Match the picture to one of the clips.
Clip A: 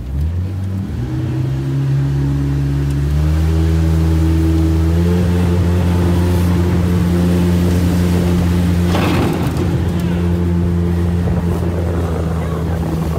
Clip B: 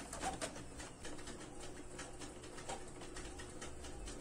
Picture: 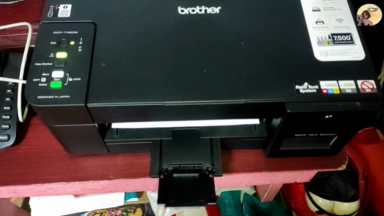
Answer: B